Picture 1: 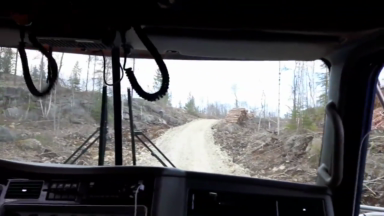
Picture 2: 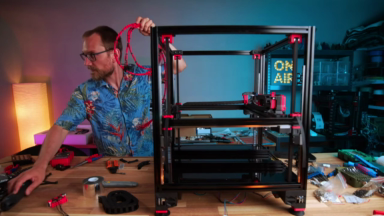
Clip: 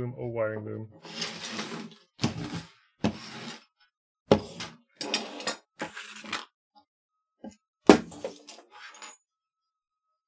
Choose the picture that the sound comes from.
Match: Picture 2